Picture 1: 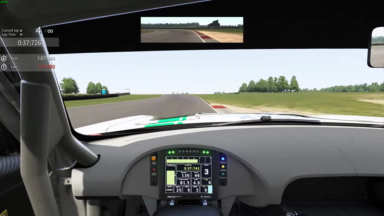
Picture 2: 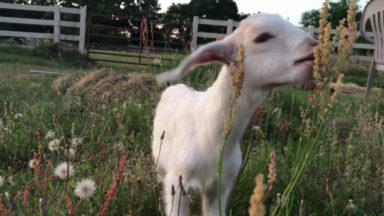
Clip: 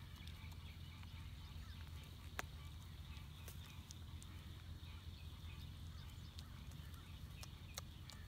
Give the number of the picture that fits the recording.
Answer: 2